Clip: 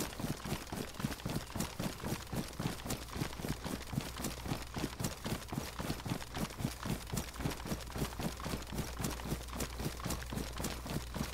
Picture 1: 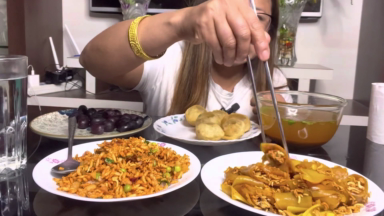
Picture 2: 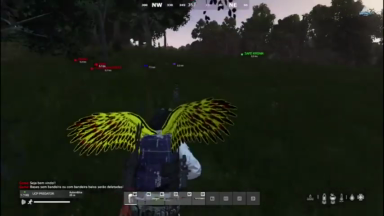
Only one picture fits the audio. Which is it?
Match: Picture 2